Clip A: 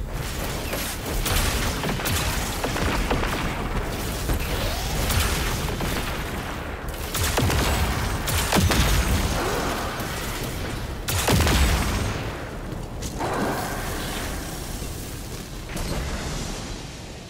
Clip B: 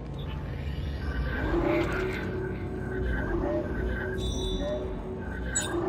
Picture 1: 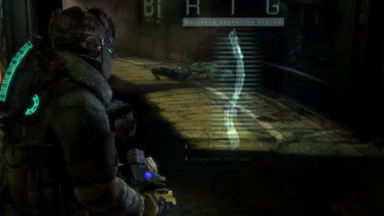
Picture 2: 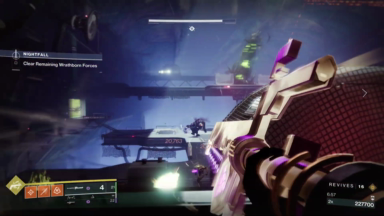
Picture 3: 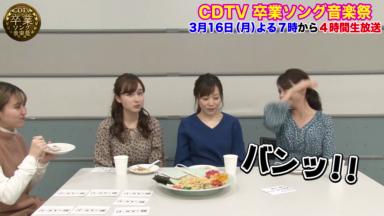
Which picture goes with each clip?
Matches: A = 2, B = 1